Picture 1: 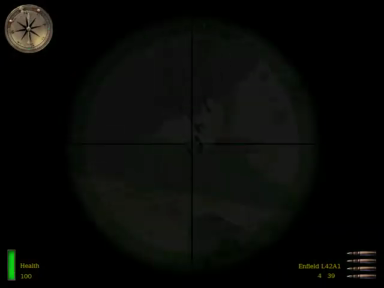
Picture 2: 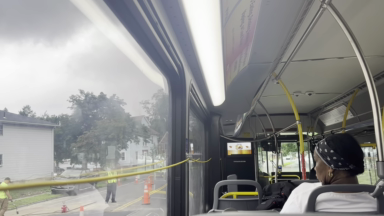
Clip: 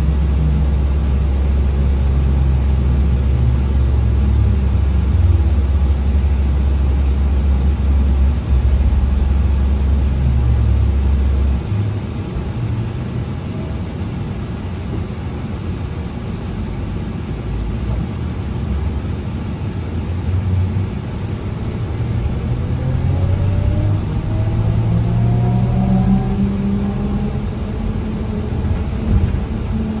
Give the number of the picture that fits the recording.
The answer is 2